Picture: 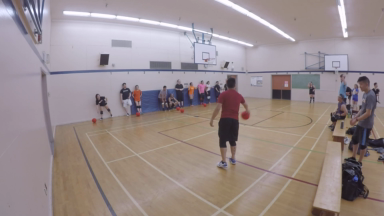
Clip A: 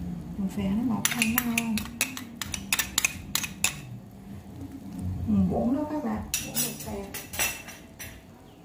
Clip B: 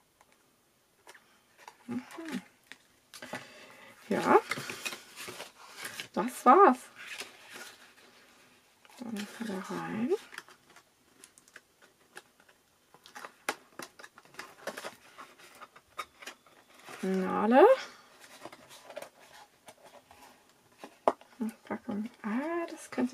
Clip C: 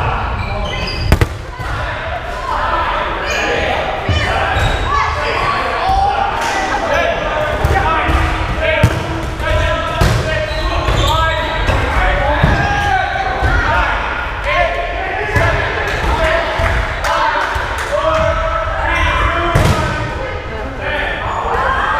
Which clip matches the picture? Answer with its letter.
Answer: C